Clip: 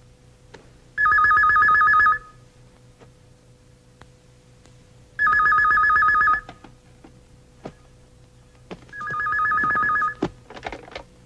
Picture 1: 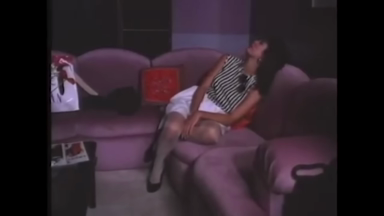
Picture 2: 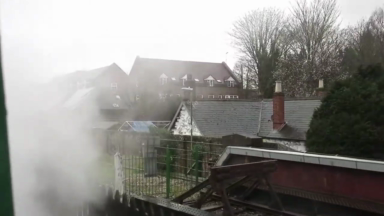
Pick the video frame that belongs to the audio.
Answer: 1